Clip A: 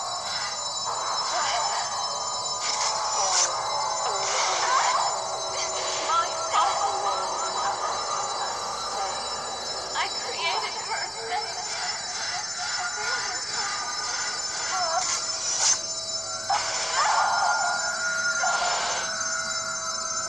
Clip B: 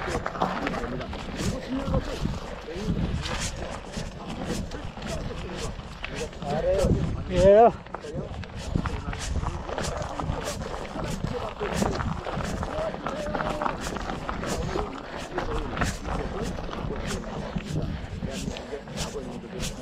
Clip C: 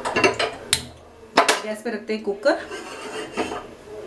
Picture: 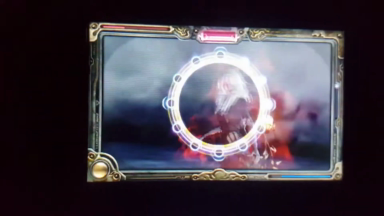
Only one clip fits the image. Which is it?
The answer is A